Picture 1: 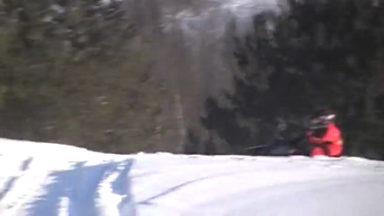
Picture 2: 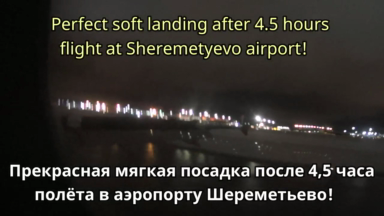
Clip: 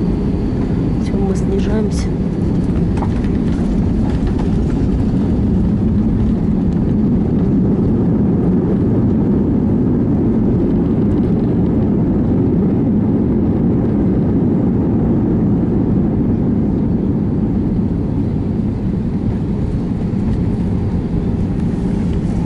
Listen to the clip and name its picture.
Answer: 2